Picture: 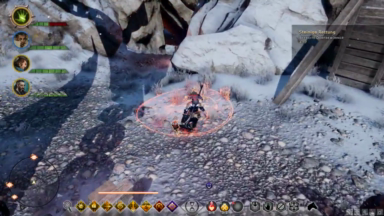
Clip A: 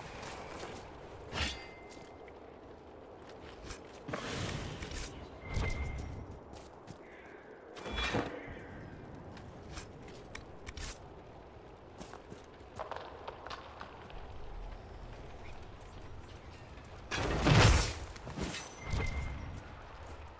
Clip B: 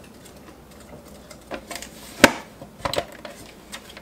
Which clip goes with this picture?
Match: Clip A